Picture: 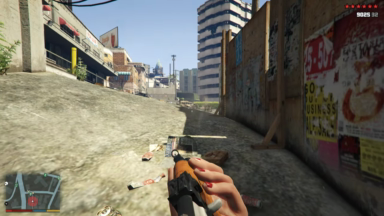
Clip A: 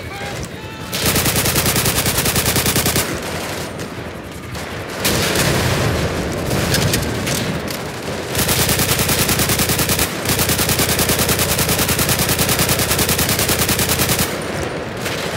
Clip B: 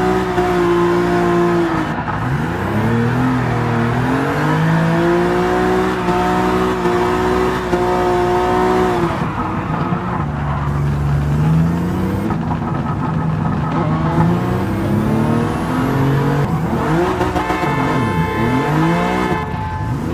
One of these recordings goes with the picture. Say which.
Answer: A